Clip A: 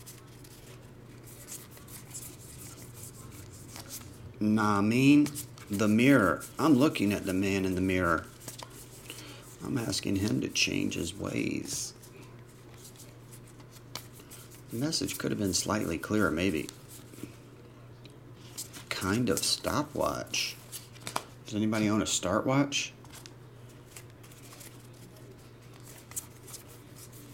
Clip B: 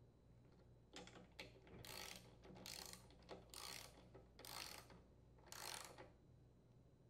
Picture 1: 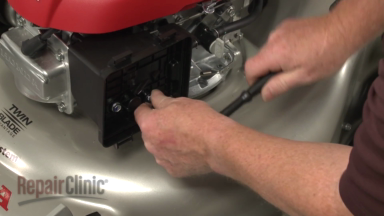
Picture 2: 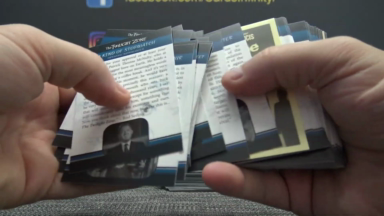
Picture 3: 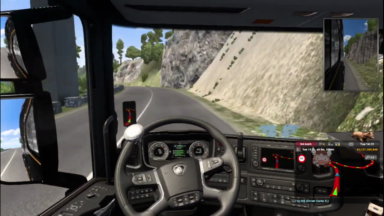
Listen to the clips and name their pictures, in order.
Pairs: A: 2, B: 1